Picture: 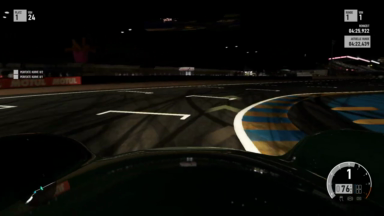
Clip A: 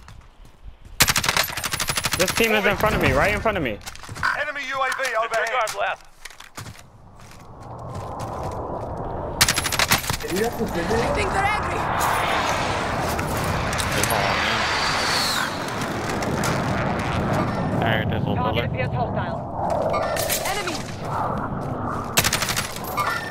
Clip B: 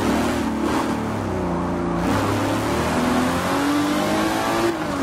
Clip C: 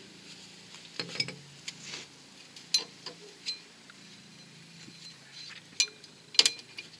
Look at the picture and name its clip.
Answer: B